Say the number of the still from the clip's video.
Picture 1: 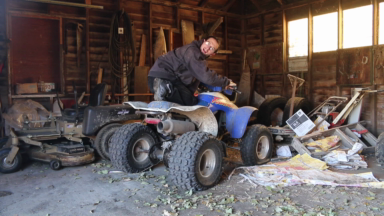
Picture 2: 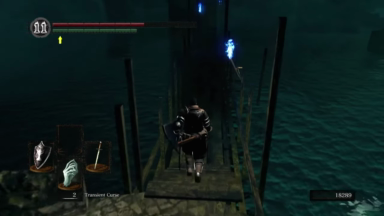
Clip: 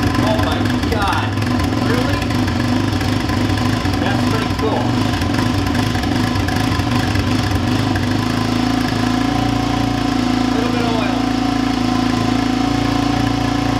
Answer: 1